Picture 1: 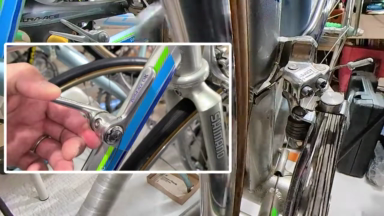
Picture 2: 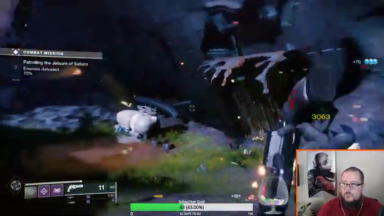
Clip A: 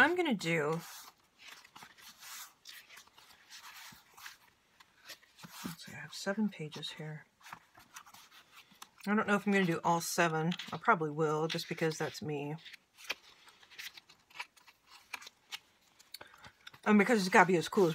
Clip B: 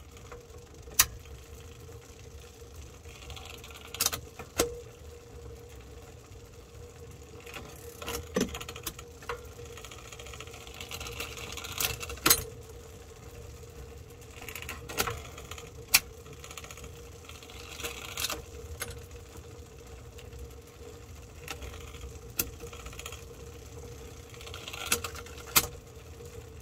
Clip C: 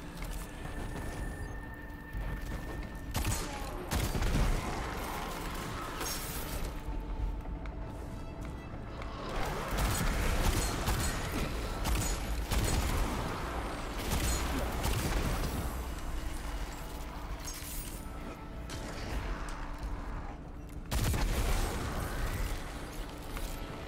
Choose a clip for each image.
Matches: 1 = B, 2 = C